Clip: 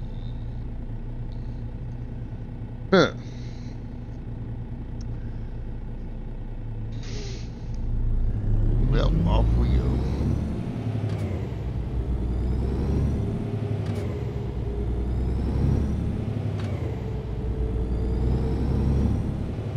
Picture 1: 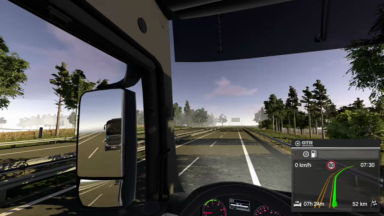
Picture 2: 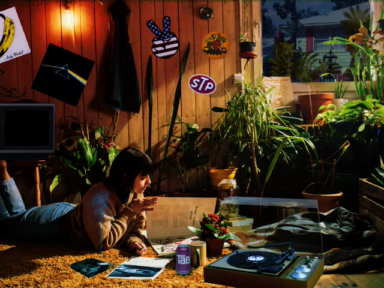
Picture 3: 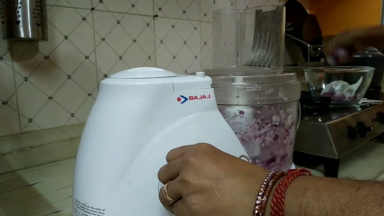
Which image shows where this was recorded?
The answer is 1